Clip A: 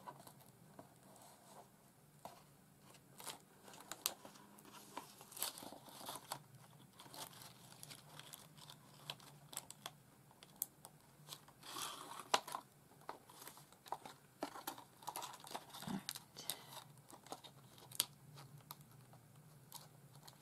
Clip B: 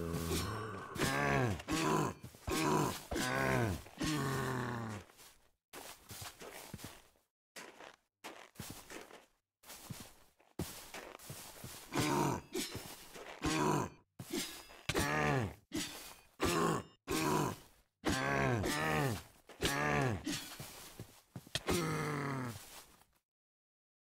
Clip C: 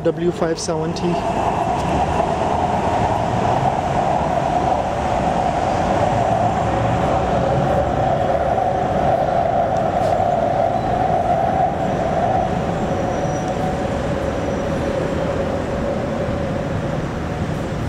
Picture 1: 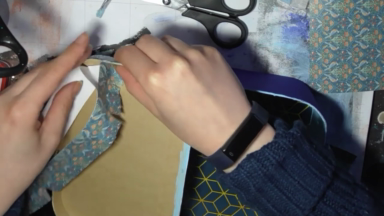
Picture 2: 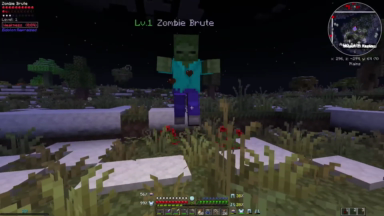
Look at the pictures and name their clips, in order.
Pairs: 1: A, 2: B